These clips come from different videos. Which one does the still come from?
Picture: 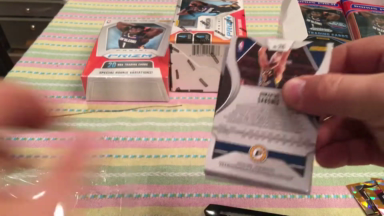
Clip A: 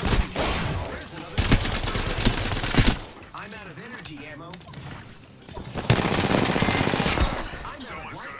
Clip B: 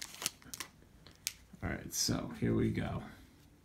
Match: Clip B